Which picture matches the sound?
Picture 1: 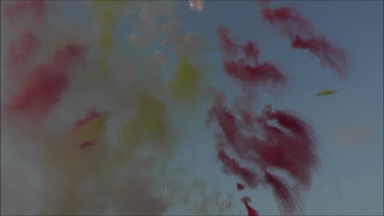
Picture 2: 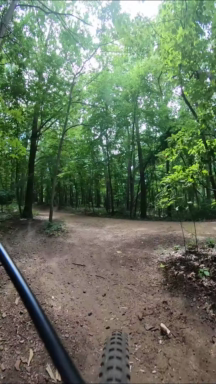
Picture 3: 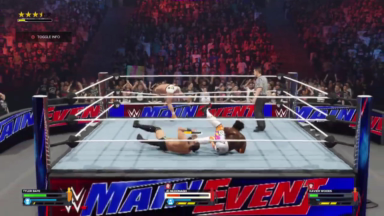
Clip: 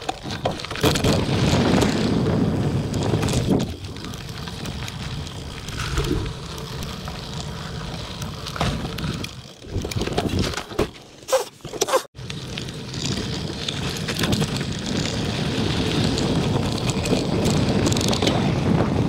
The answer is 2